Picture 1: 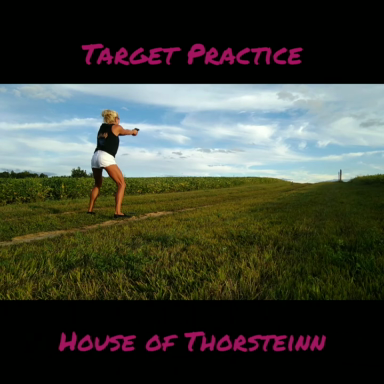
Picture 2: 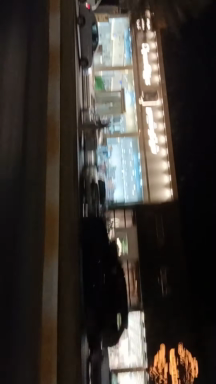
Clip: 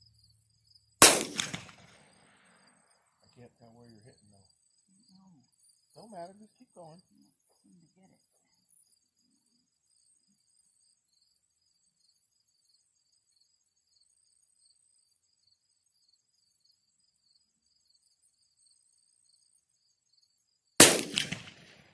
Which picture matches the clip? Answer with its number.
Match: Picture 1